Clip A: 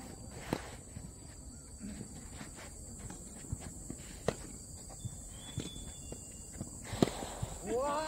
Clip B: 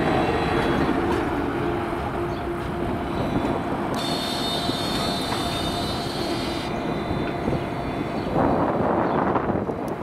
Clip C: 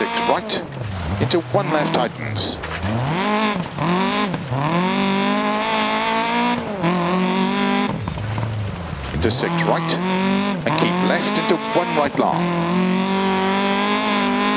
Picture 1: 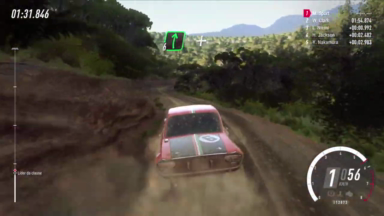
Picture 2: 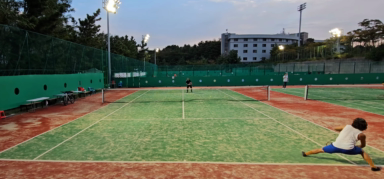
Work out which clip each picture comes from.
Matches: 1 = C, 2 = A